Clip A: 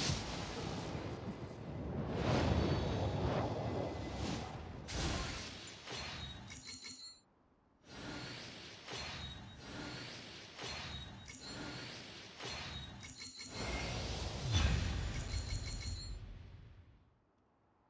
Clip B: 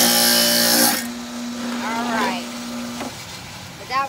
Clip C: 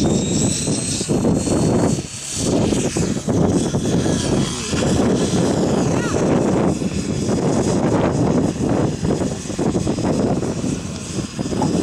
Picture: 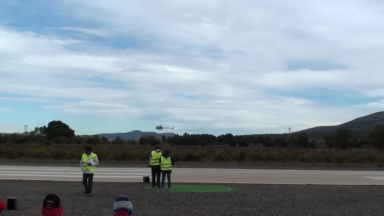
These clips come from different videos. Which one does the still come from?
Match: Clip C